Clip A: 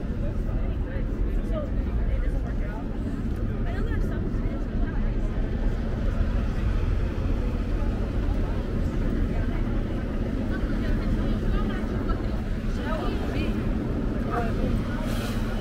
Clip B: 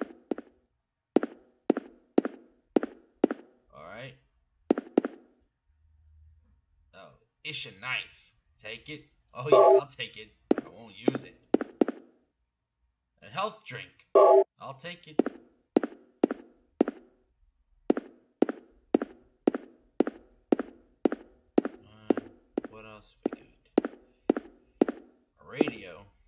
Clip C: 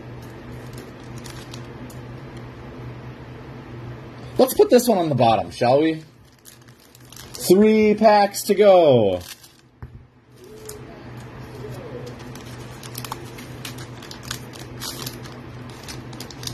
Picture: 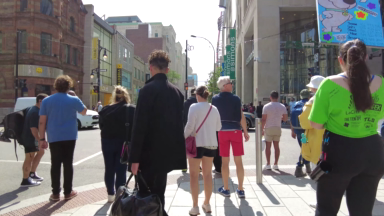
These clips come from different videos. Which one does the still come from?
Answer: A